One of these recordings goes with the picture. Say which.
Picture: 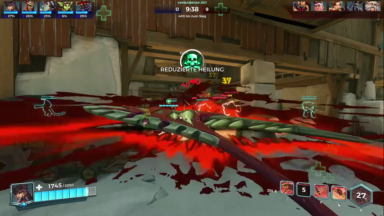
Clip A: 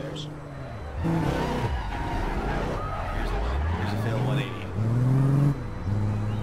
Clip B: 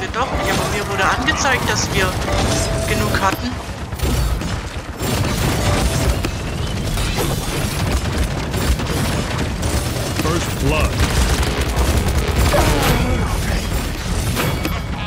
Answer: B